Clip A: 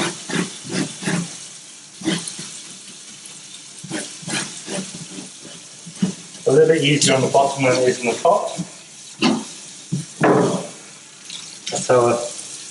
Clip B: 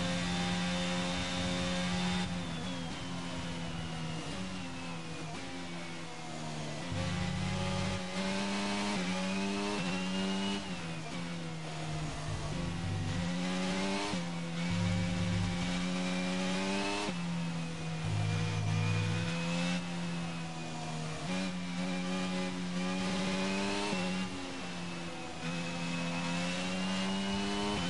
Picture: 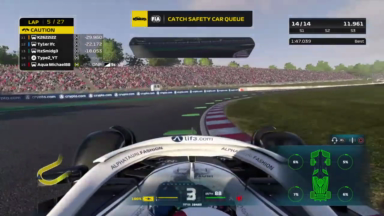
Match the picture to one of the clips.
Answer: B